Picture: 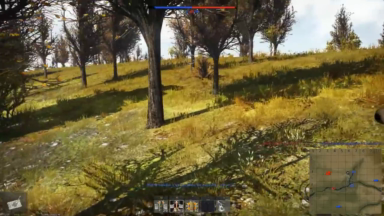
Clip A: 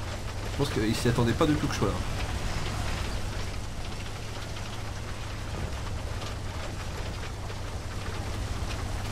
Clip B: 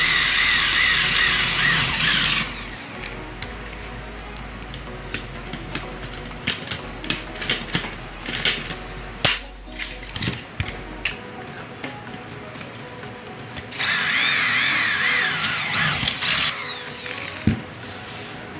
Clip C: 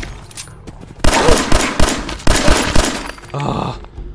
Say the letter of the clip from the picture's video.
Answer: A